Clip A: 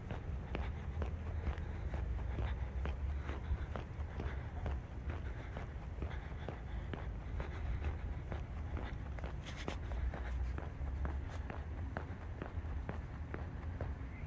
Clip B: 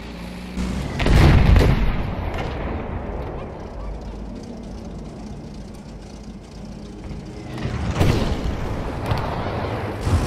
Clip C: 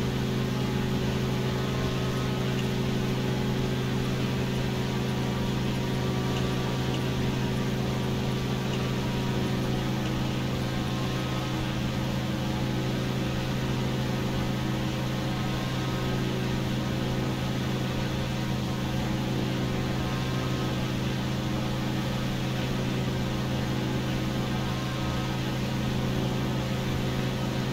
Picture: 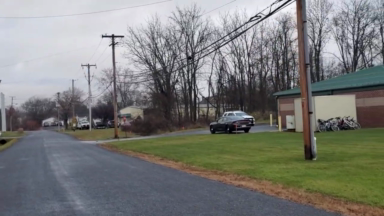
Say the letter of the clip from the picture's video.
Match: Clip A